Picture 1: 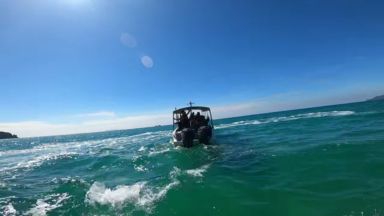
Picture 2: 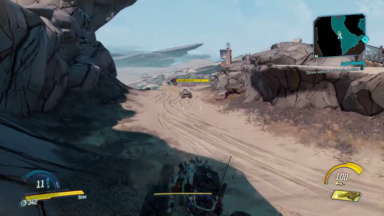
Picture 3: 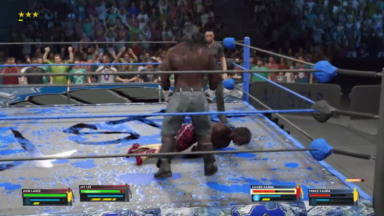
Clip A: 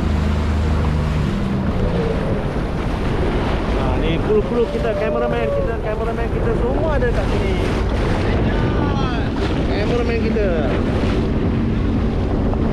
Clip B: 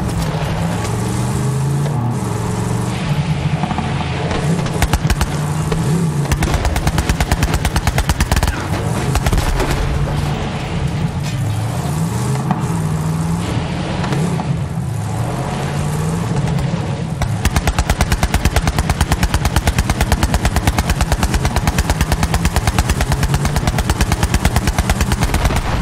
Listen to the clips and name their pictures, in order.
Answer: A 1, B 2